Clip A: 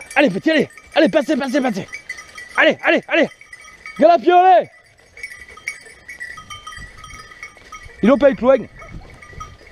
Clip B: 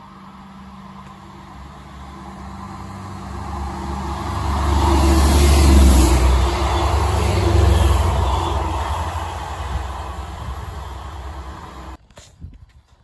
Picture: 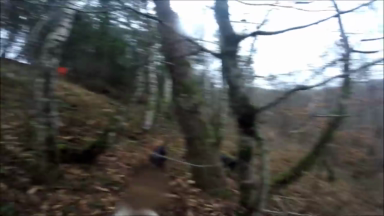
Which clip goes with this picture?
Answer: A